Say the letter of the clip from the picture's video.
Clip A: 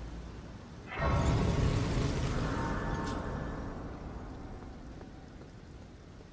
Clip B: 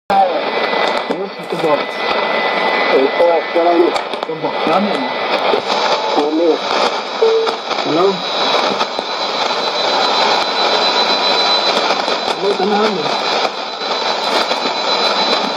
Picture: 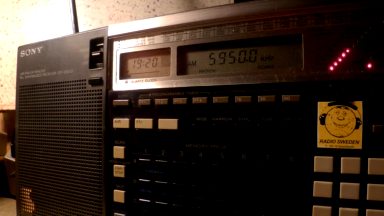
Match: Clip B